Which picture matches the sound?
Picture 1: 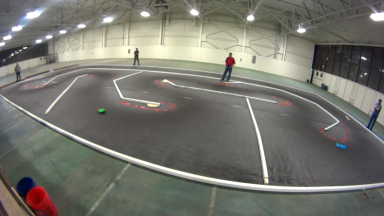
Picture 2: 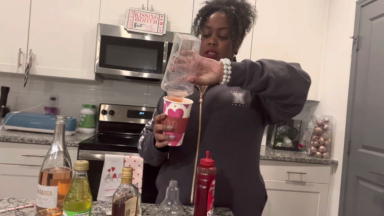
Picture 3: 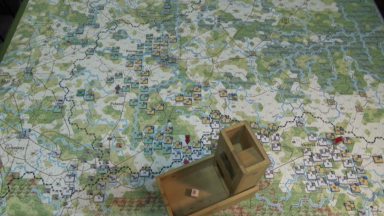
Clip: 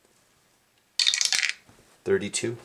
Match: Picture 3